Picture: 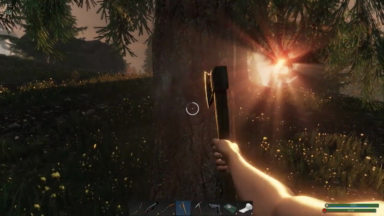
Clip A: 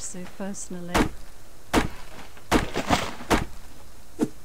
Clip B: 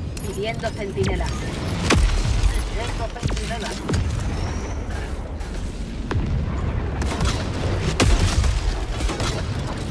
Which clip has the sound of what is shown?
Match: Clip A